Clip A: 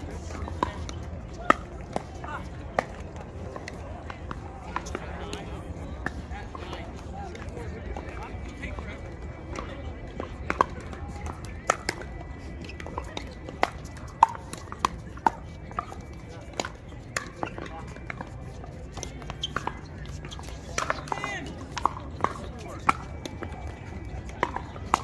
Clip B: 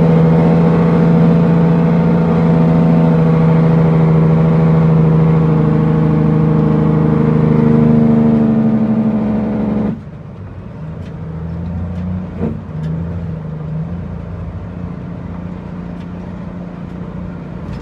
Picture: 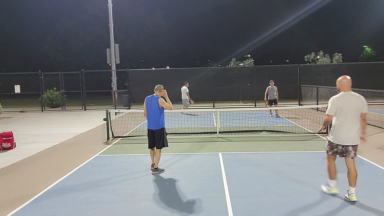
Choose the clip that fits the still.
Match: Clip A